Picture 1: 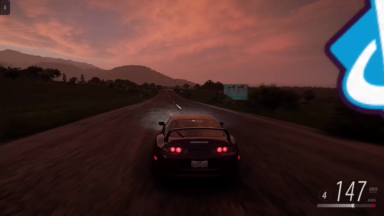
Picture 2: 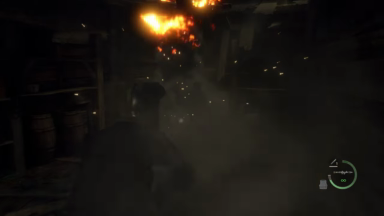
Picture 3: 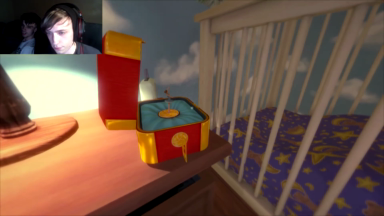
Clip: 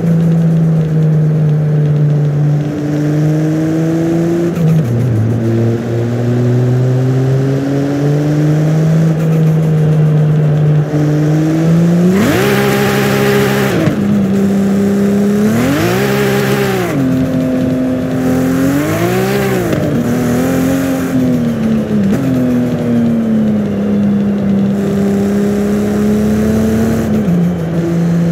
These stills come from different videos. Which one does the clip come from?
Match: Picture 1